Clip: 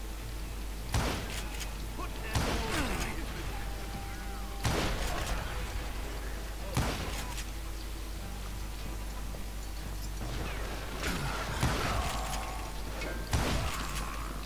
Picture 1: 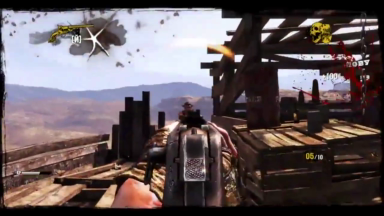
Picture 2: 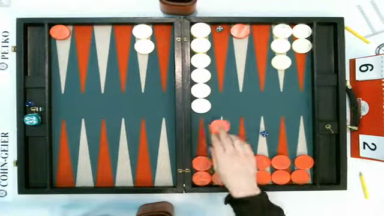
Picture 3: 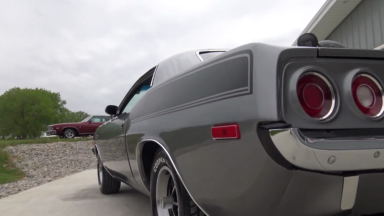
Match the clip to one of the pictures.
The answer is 1